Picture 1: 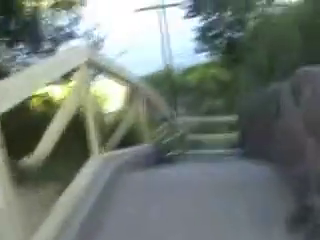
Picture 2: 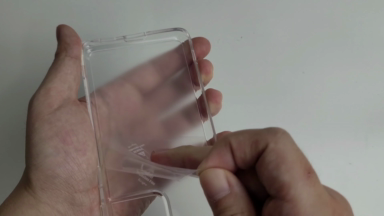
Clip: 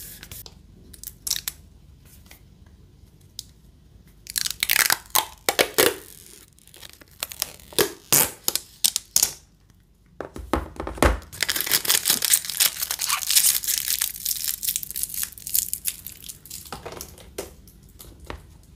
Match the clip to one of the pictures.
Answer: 2